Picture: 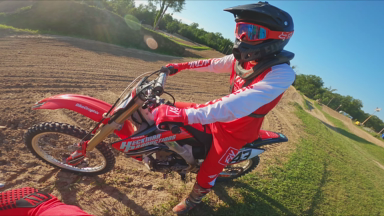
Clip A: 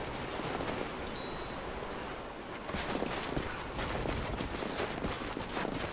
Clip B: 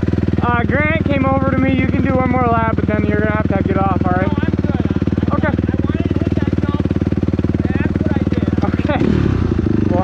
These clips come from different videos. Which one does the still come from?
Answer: B